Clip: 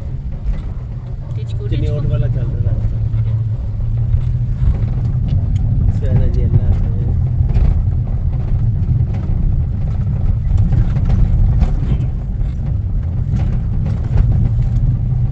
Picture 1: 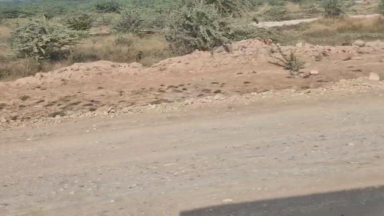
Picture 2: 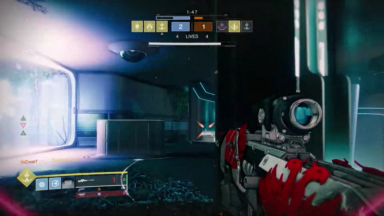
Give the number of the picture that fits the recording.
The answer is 1